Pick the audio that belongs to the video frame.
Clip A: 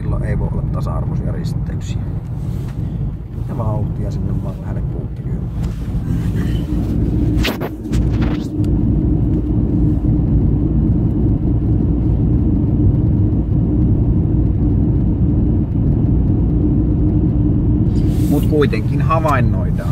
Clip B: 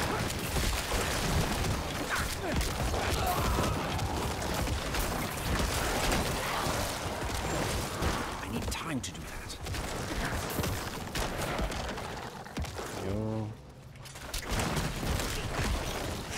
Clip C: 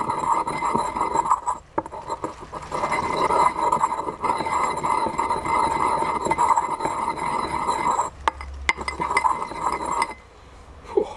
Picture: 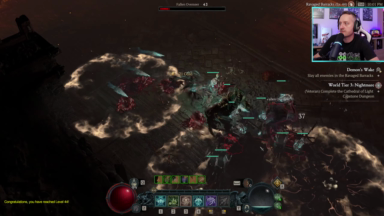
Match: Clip B